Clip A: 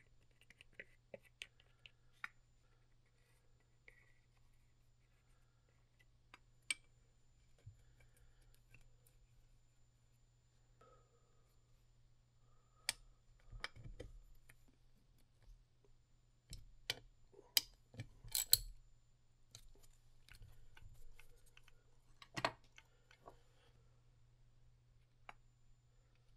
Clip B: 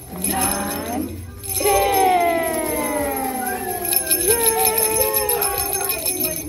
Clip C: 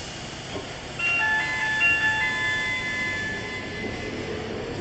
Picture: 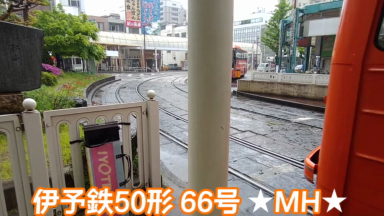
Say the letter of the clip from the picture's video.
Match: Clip C